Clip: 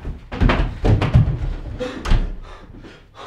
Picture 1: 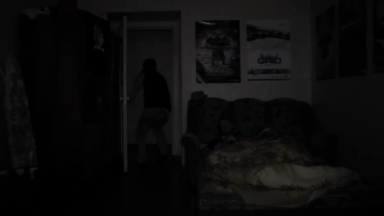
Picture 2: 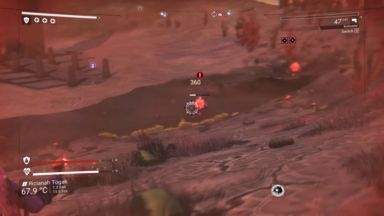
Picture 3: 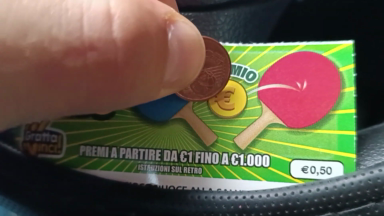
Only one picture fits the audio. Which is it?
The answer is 1